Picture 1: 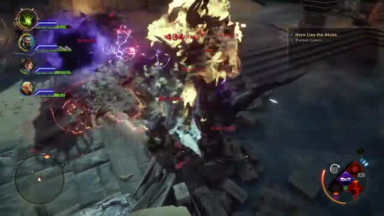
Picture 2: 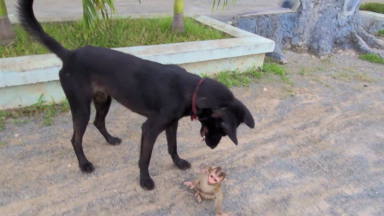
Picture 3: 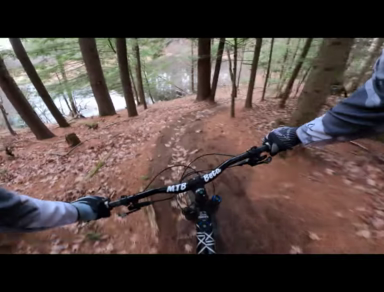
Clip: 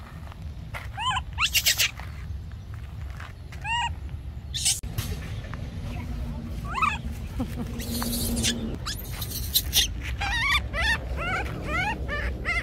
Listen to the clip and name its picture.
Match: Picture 2